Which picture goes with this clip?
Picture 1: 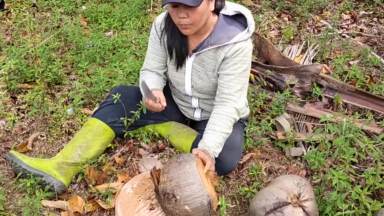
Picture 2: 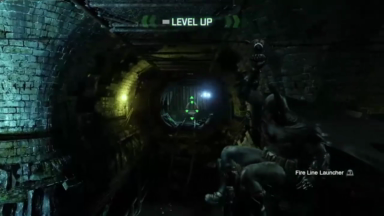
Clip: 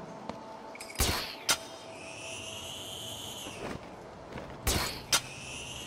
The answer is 2